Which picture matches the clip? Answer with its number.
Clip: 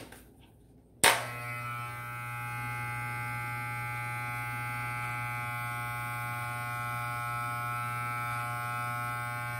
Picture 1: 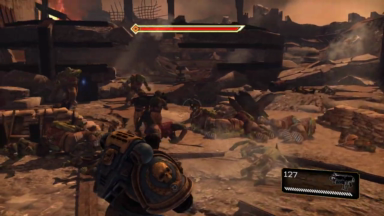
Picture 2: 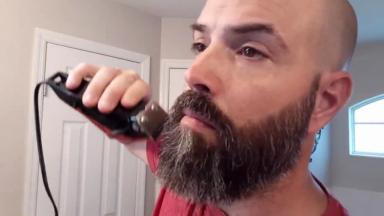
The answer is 2